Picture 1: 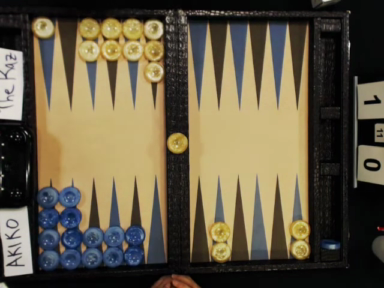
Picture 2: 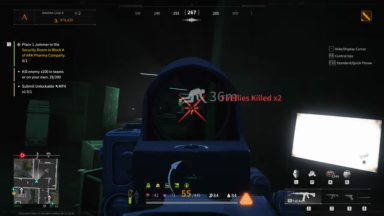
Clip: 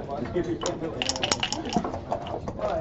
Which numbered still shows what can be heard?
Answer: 1